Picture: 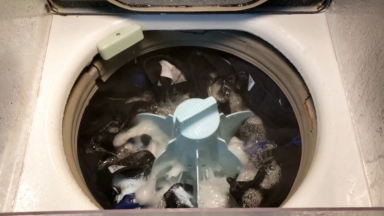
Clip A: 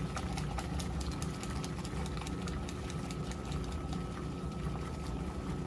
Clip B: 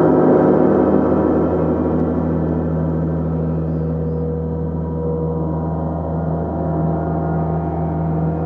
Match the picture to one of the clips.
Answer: A